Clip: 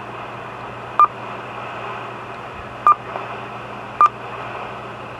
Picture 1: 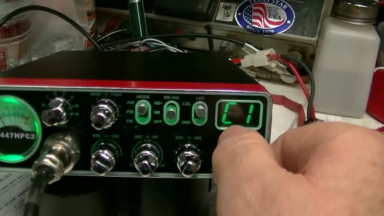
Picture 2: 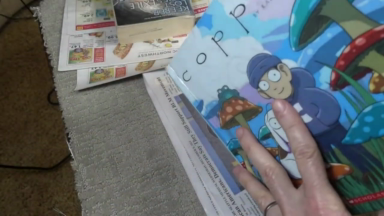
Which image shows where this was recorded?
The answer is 1